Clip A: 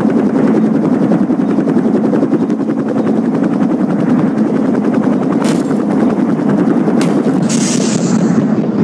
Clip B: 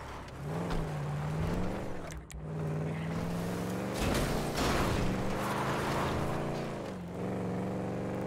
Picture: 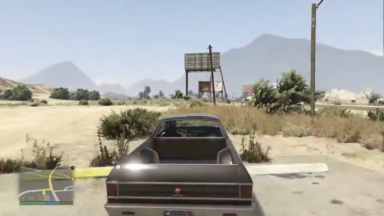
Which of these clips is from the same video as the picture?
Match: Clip B